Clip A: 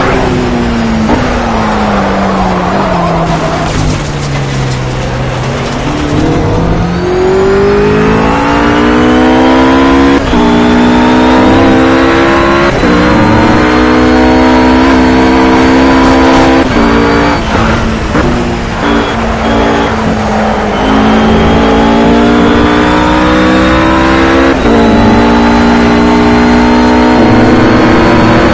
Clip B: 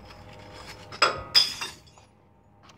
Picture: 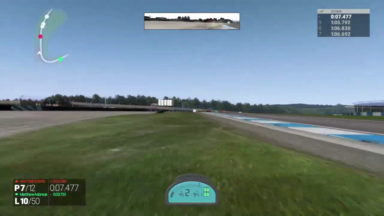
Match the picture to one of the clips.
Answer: A